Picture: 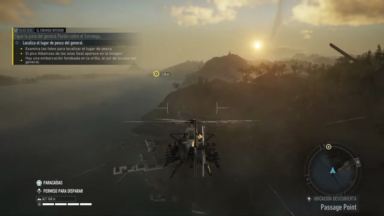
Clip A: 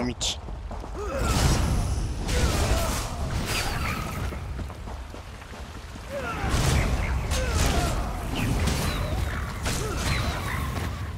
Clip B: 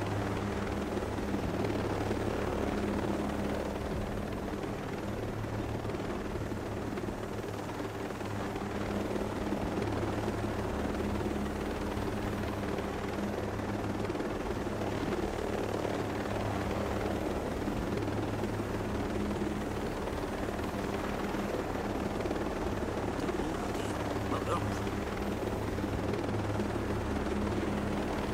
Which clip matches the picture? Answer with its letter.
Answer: B